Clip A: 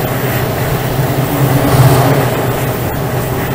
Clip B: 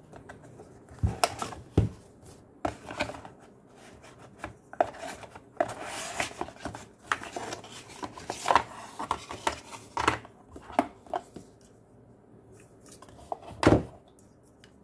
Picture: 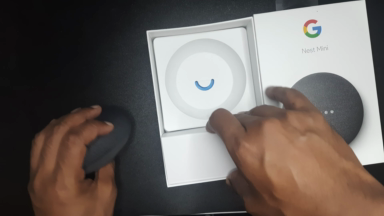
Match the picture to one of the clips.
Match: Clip B